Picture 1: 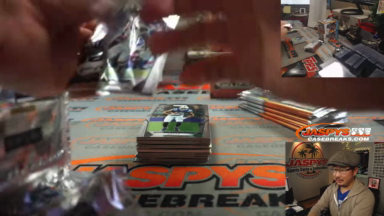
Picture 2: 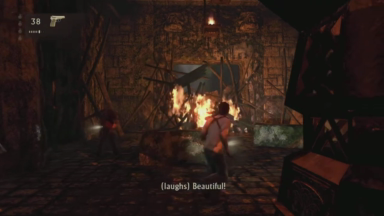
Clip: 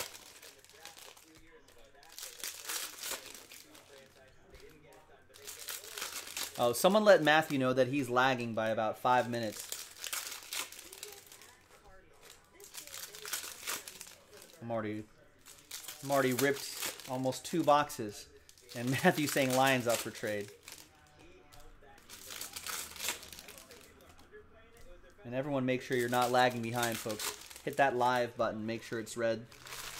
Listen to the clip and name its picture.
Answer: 1